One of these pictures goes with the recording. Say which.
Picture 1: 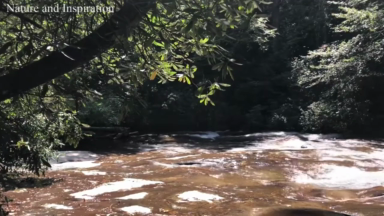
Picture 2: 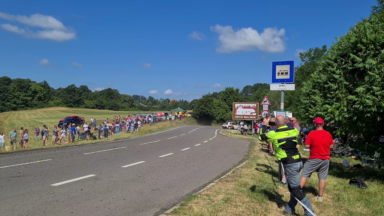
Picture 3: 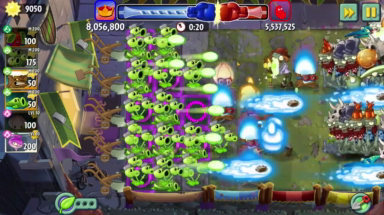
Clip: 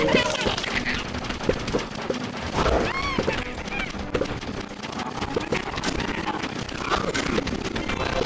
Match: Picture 3